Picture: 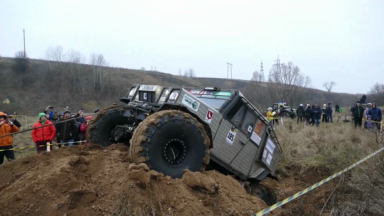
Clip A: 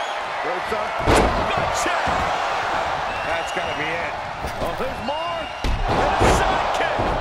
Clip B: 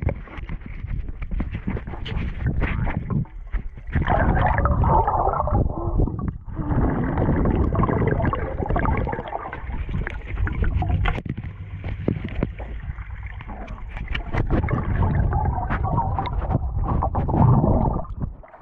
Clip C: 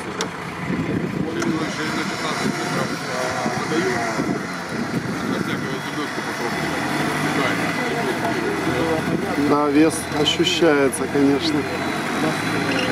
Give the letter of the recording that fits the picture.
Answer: C